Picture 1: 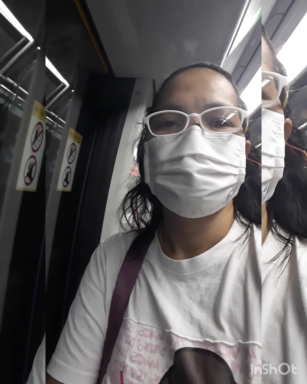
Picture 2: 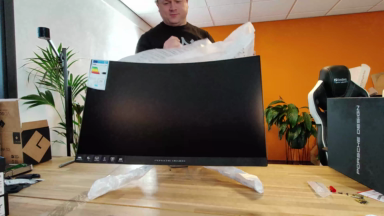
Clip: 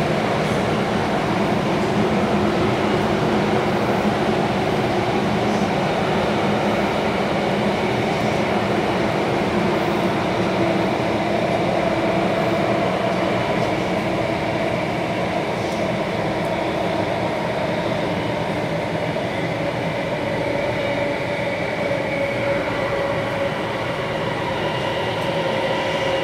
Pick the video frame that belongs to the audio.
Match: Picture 1